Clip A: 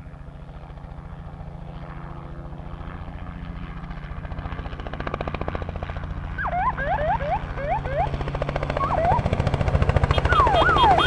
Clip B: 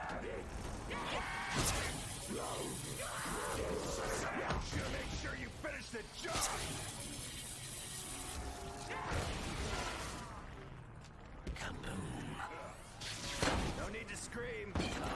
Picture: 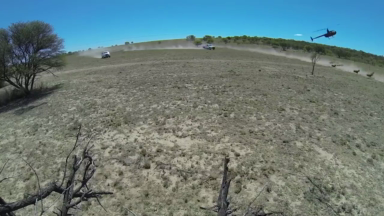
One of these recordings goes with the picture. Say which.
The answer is A